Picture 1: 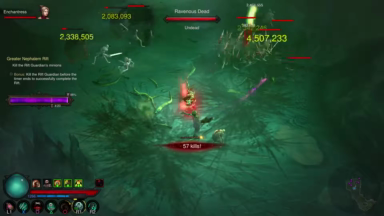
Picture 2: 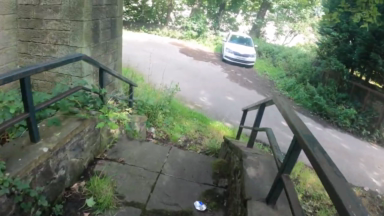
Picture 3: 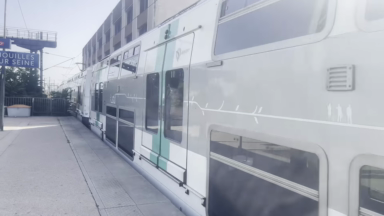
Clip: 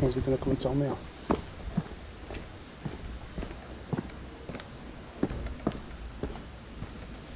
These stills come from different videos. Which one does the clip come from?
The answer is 2